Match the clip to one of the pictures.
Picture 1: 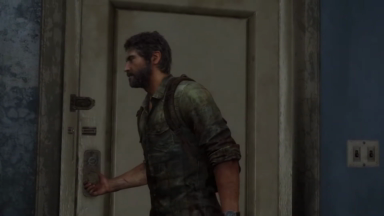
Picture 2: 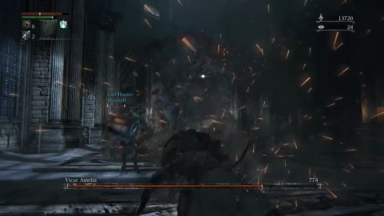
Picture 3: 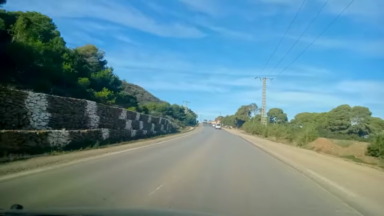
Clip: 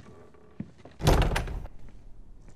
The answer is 1